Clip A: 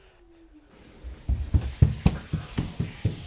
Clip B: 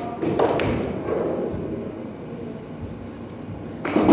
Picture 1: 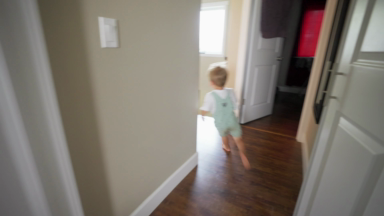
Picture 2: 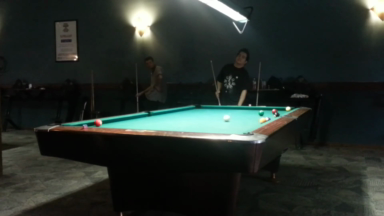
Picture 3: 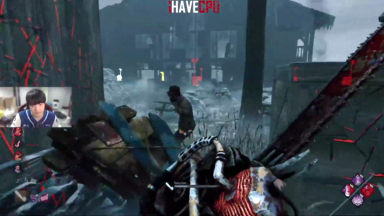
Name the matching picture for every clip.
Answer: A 1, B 2